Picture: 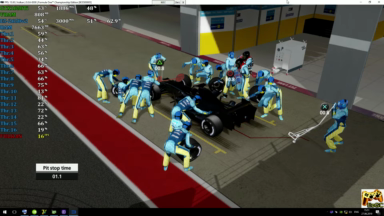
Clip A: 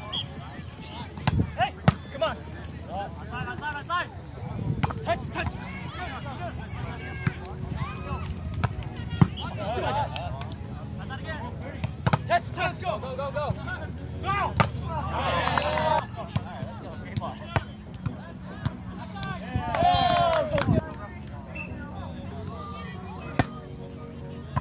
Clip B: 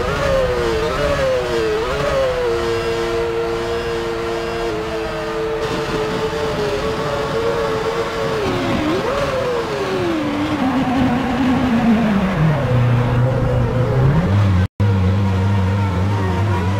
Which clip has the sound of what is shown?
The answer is B